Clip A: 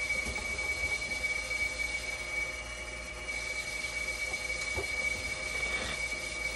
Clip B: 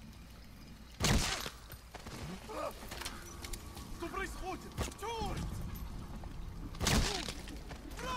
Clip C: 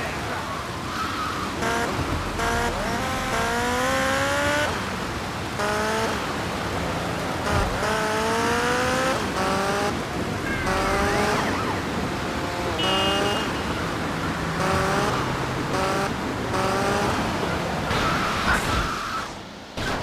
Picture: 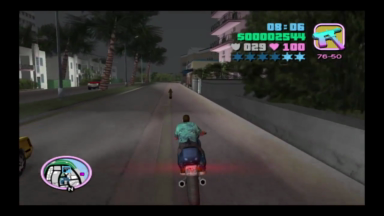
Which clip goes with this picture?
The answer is C